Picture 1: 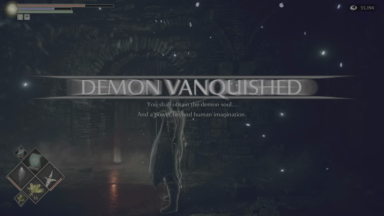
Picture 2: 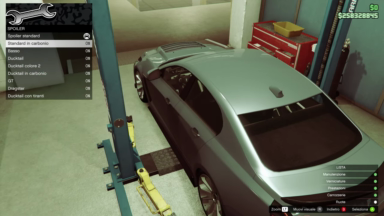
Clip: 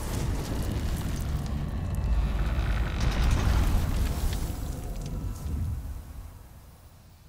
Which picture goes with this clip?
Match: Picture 1